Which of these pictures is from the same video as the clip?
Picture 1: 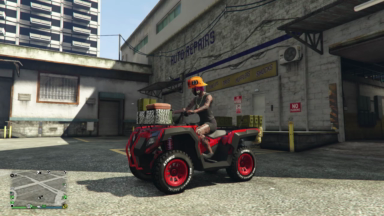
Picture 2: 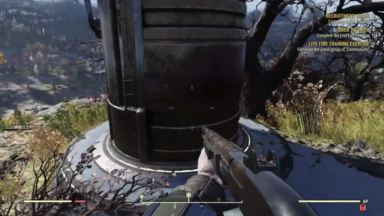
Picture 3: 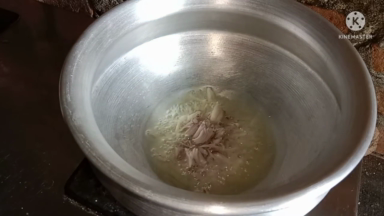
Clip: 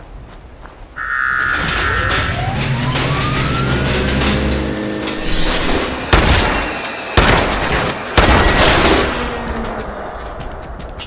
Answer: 2